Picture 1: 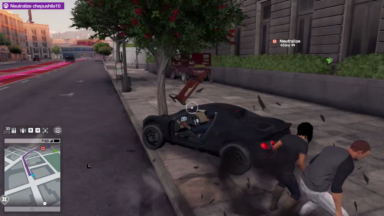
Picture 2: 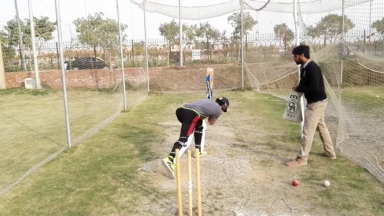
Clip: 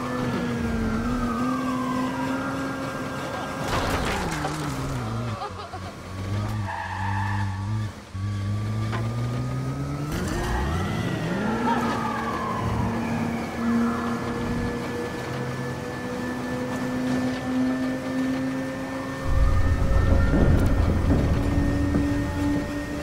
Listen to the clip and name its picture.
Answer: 1